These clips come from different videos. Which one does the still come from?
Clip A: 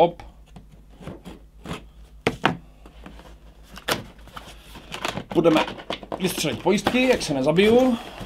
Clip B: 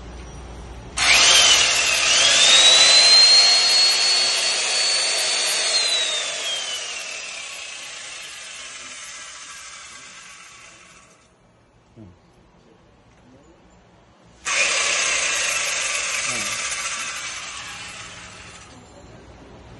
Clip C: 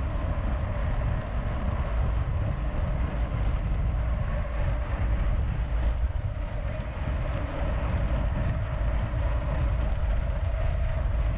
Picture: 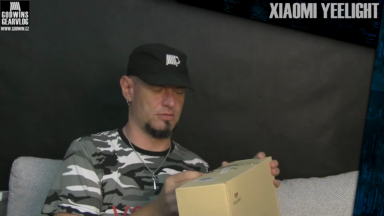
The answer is A